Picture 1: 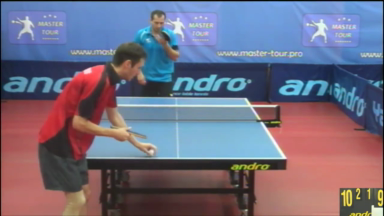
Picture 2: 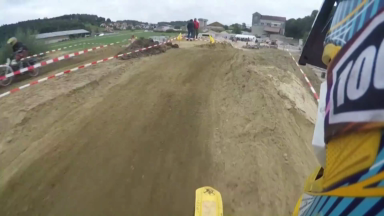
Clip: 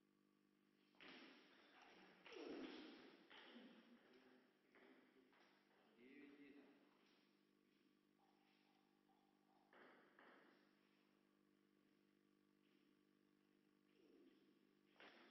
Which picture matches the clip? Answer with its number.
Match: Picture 1